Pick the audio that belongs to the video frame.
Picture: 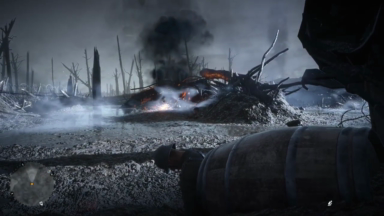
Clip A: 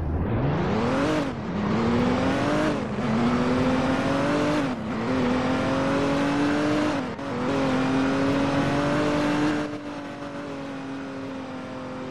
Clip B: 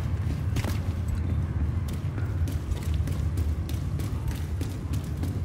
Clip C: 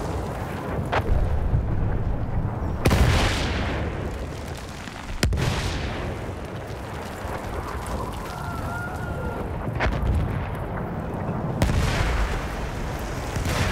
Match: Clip C